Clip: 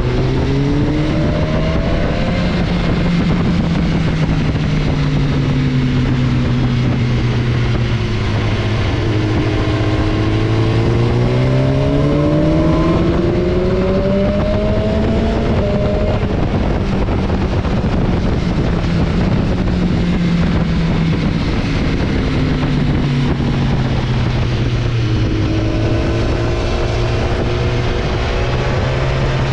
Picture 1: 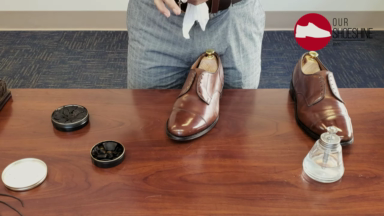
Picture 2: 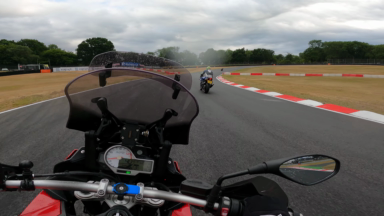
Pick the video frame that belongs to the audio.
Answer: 2